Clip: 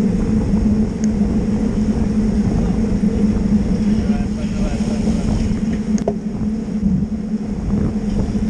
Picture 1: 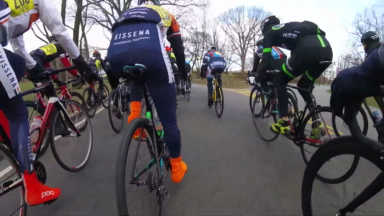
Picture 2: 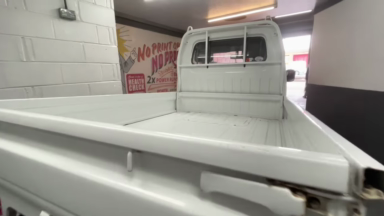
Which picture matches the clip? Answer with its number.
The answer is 1